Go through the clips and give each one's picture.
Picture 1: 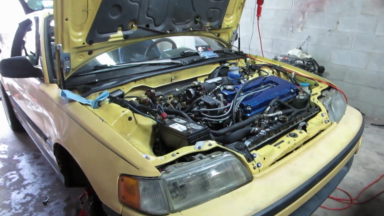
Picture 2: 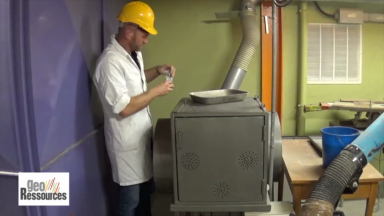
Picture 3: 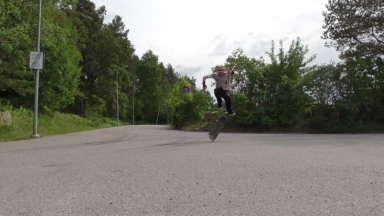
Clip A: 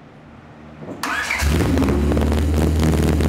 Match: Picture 1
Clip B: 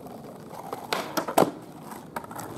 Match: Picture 3